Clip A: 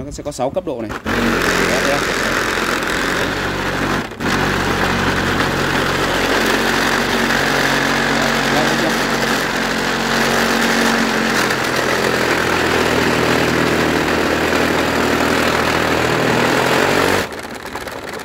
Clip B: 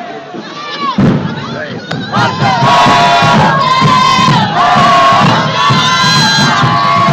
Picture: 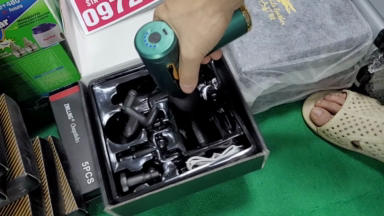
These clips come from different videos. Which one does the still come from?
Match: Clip A